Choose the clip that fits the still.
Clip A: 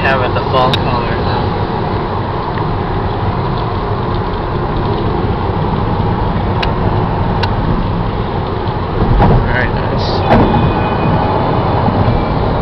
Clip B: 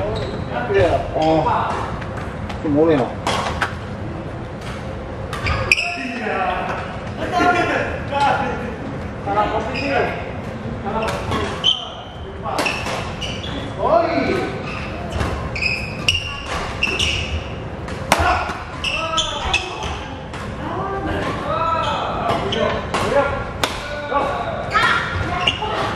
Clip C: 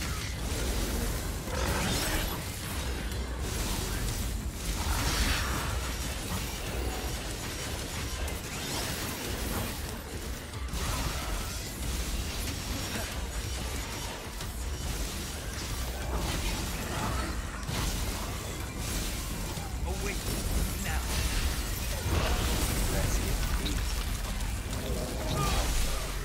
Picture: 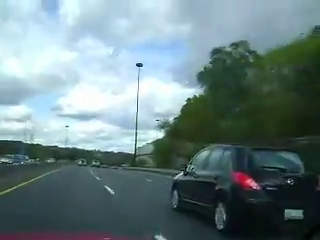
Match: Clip A